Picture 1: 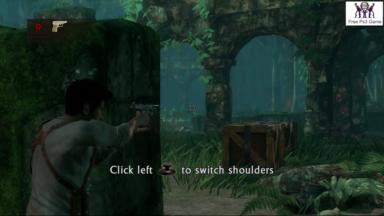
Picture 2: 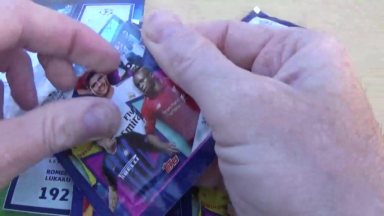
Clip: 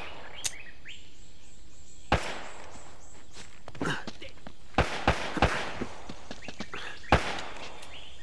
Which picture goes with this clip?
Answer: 1